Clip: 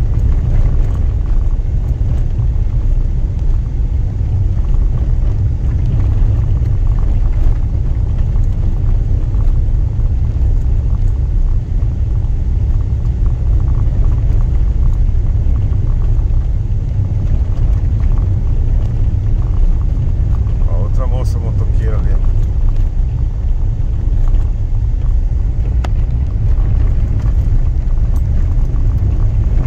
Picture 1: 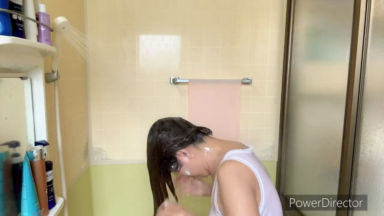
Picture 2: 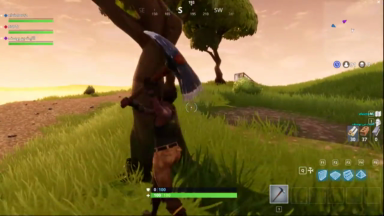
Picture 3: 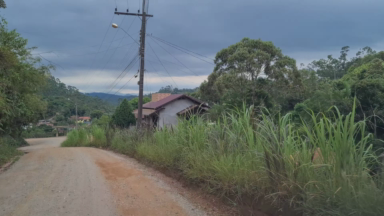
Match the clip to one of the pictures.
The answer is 3